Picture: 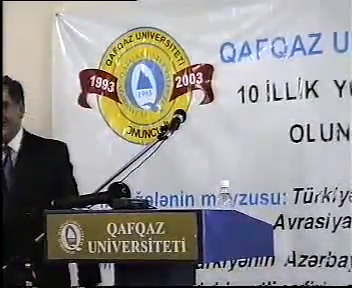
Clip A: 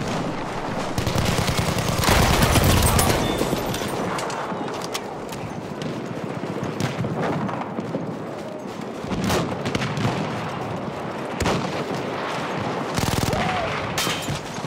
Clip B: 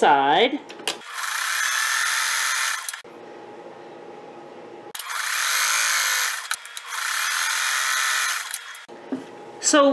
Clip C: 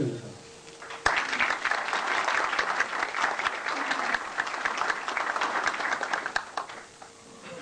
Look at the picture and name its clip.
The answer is C